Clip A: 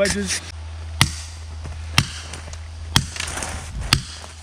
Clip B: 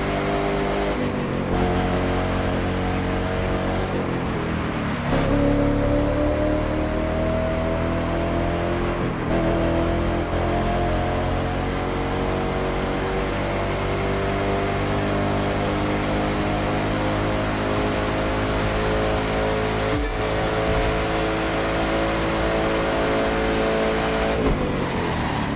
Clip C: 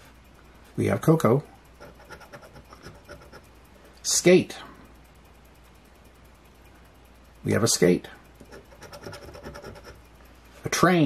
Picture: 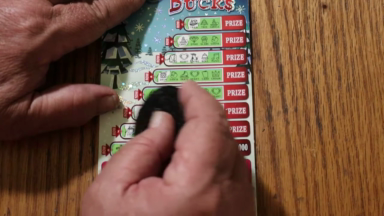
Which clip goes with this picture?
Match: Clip C